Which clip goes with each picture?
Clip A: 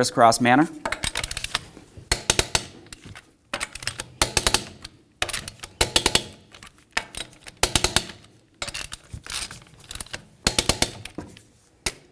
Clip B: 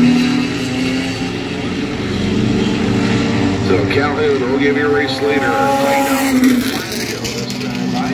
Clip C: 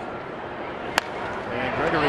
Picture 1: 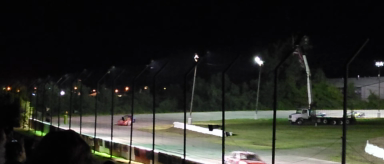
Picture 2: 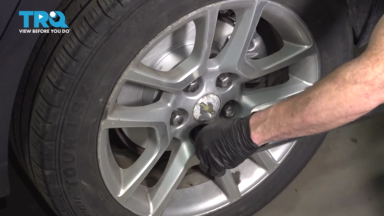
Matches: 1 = B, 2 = A